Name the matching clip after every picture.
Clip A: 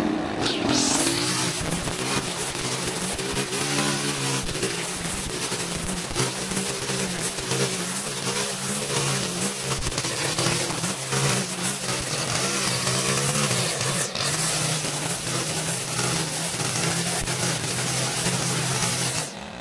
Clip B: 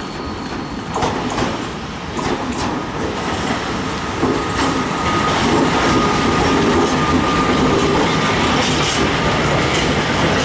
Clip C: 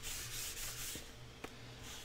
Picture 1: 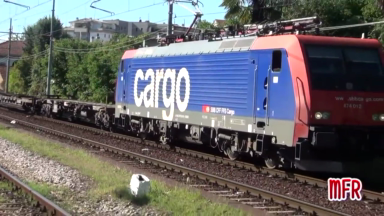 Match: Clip B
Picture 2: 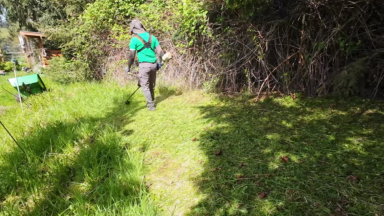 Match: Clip A